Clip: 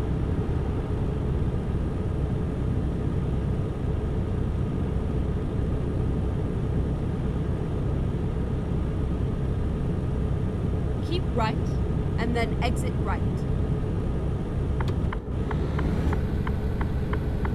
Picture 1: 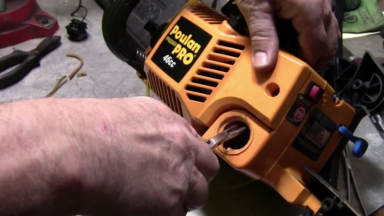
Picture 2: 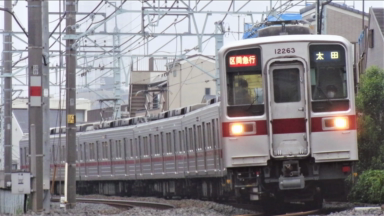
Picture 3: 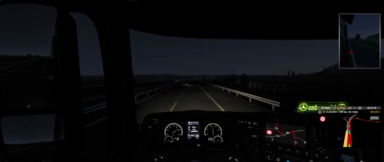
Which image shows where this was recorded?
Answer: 3